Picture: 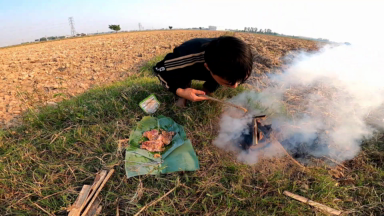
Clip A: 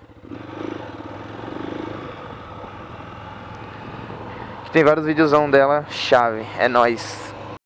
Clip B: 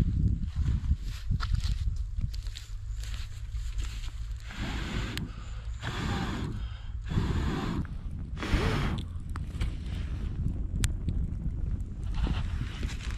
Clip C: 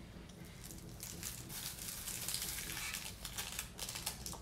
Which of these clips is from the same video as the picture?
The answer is B